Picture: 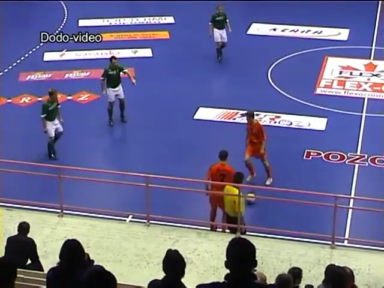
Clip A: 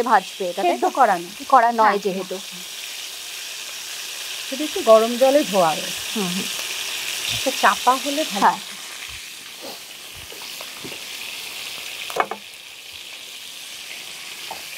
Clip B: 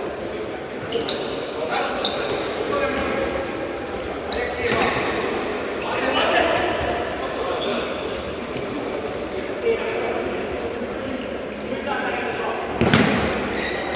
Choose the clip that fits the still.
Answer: B